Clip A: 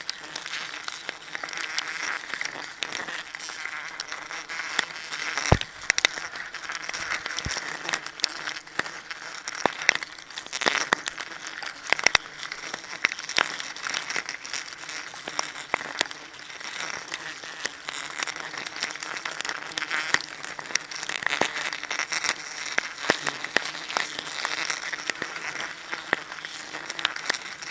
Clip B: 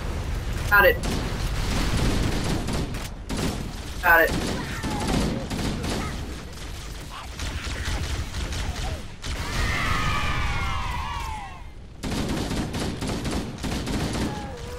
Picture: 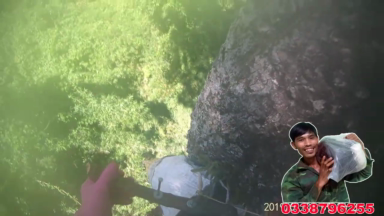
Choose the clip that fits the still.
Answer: A